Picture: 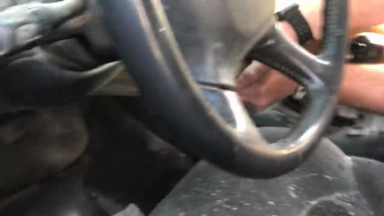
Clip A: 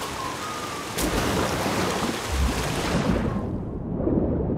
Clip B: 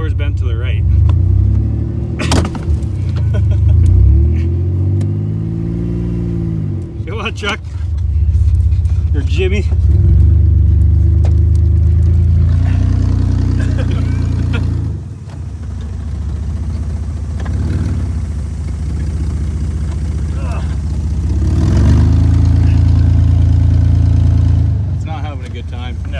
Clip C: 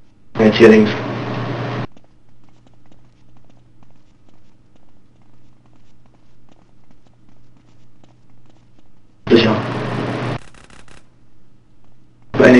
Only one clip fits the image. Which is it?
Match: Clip B